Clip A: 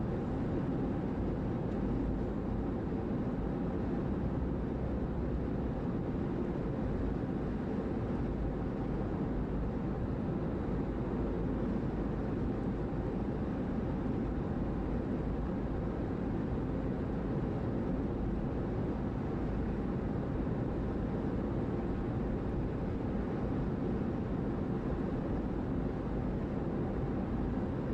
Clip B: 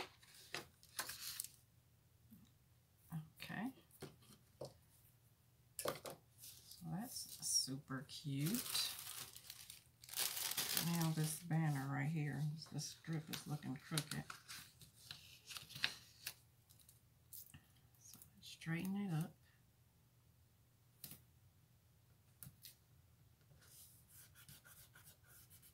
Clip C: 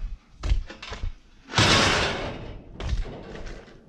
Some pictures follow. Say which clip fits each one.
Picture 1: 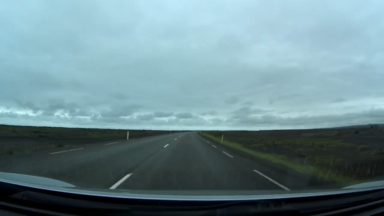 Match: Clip A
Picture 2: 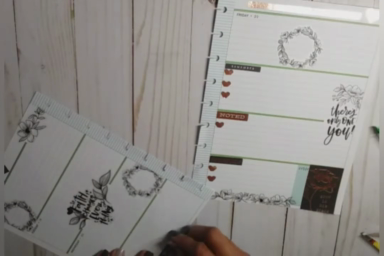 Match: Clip B